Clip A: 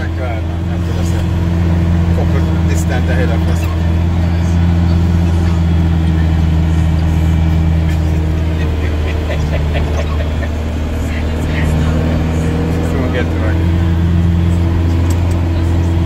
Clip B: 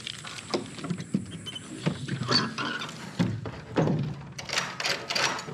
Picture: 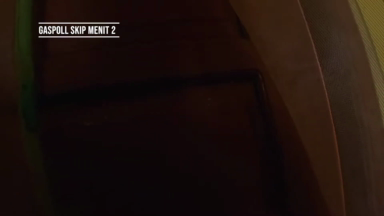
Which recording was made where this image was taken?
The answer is B